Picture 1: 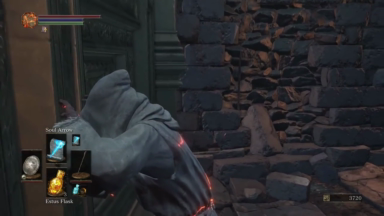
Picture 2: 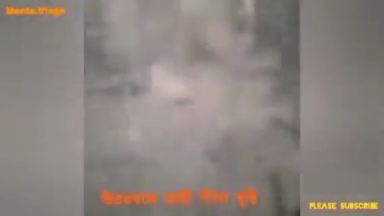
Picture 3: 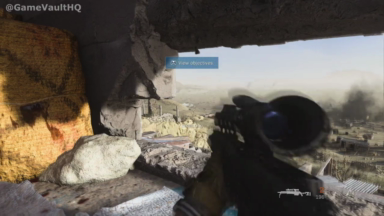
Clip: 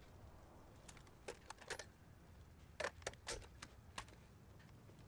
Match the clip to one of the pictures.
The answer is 3